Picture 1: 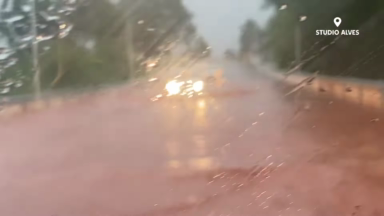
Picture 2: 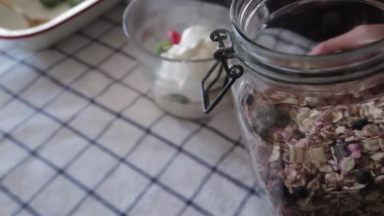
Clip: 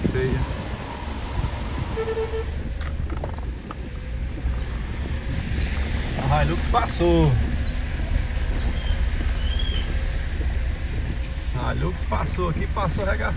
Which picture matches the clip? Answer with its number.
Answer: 1